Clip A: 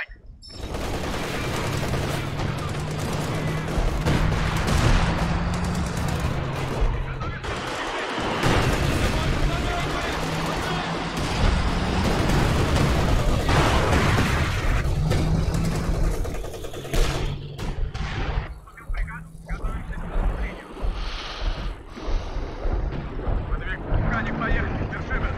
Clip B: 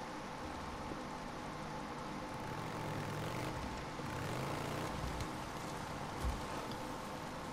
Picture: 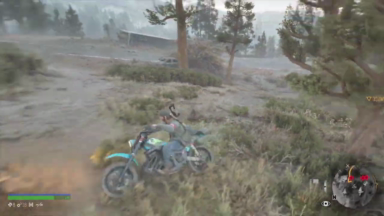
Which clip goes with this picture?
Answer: B